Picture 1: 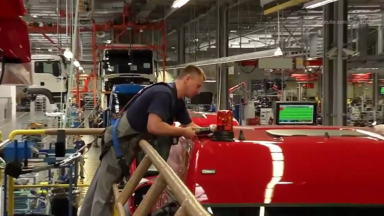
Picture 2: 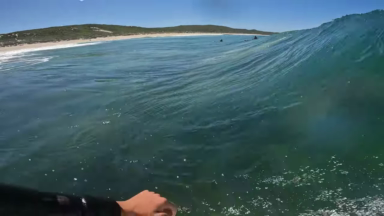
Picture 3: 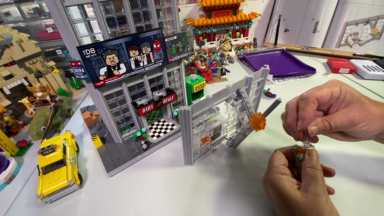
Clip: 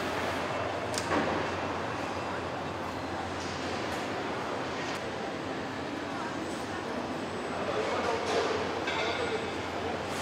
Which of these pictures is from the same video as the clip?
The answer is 1